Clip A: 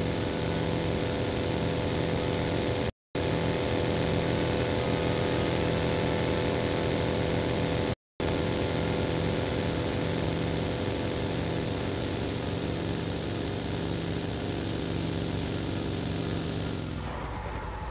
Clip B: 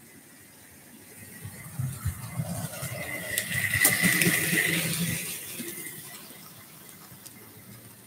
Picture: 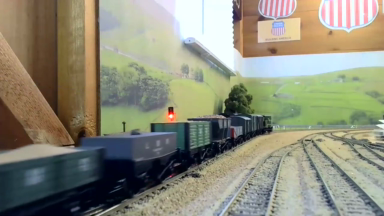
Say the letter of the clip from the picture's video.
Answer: B